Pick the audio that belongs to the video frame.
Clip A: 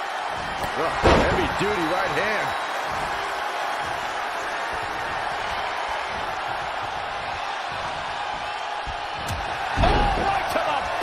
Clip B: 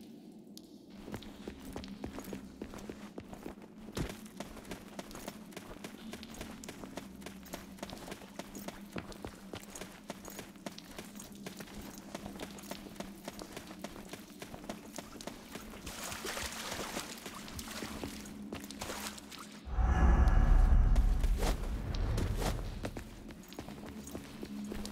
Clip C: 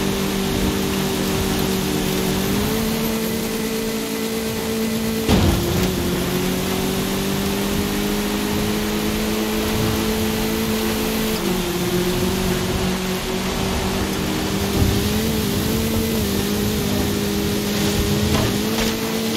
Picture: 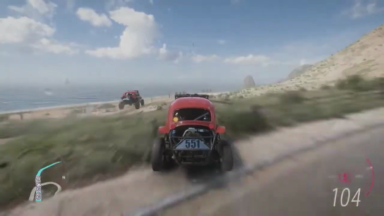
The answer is C